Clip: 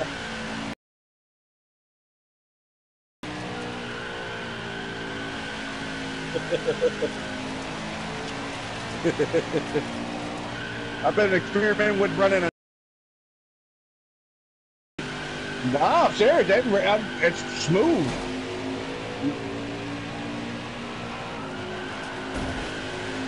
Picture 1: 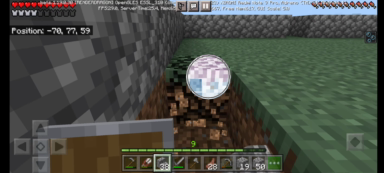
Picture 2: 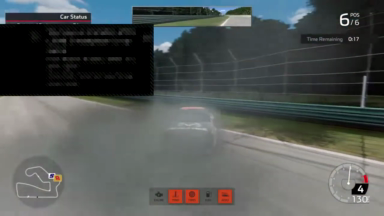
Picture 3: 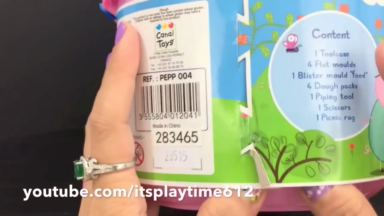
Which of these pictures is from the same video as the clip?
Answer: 2